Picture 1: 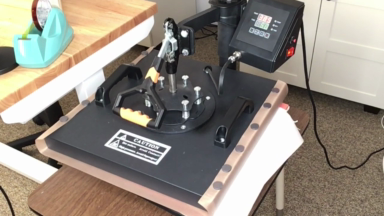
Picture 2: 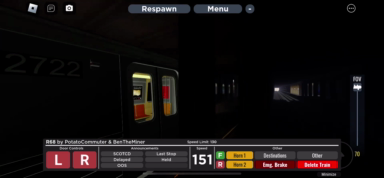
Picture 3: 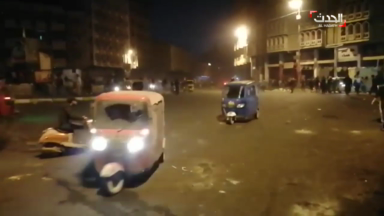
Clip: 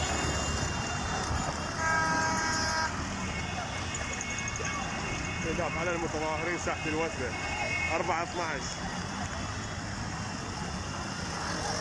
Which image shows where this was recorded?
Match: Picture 3